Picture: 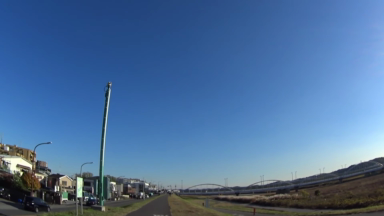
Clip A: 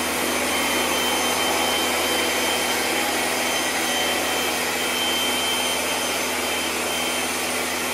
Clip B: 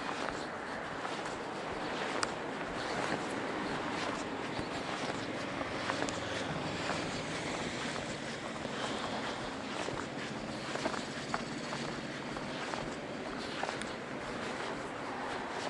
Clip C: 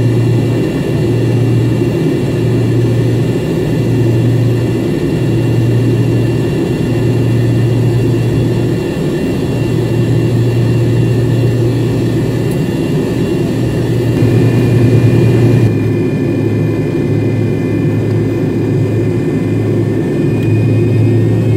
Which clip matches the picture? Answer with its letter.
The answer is B